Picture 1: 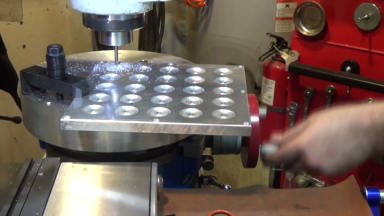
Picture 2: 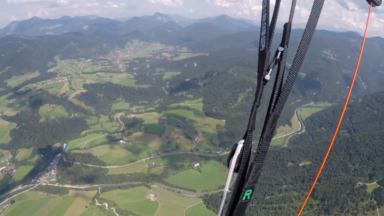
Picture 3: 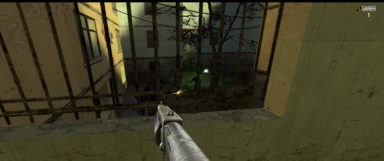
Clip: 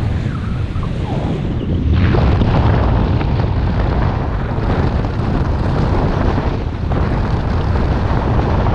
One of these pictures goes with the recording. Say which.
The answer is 2